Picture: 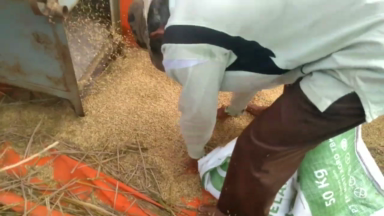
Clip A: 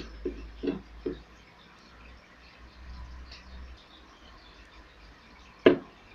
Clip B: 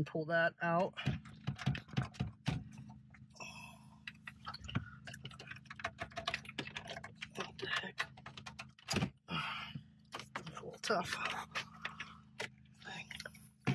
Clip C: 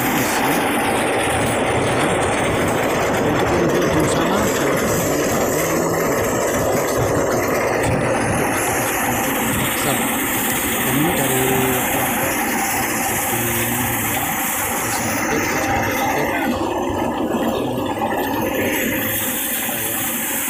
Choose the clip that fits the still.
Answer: C